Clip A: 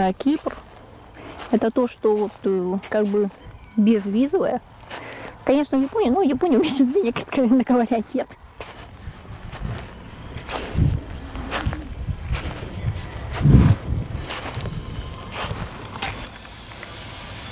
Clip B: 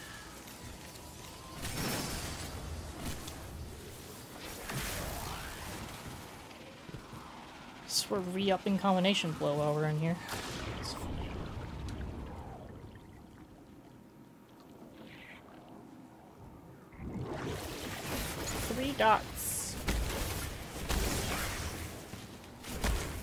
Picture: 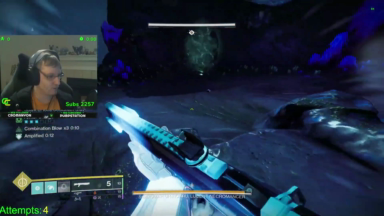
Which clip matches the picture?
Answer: B